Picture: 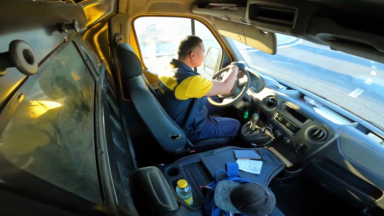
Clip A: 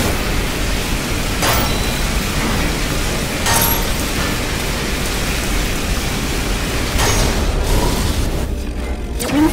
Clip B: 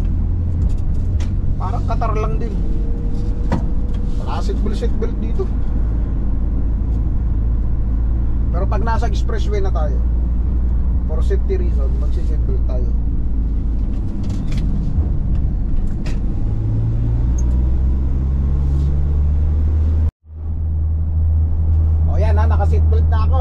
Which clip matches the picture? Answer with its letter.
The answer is B